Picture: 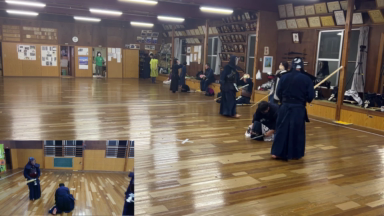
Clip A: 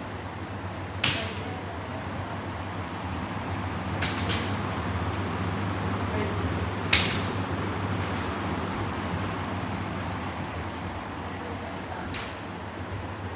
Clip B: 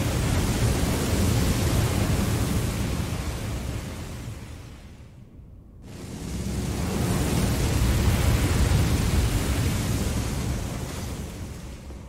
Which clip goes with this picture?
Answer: A